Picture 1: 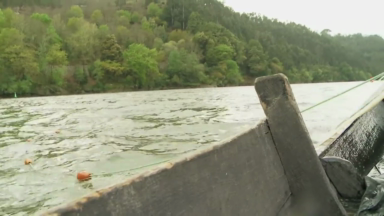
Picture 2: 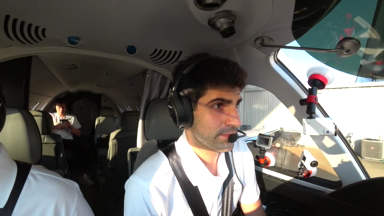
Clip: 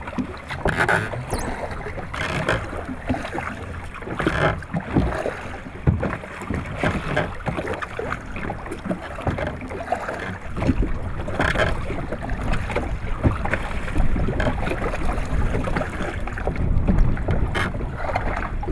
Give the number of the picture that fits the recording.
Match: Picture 1